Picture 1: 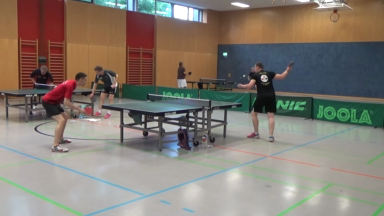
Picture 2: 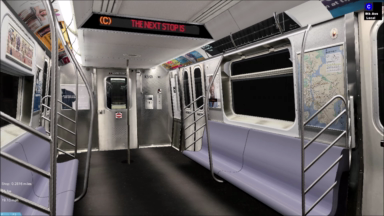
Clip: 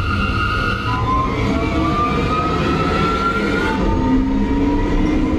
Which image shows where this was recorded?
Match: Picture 2